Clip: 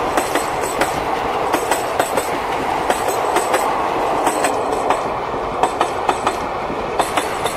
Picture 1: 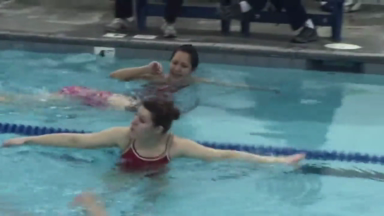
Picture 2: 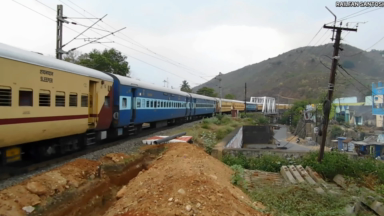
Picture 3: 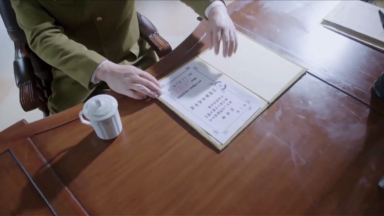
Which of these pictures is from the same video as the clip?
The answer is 2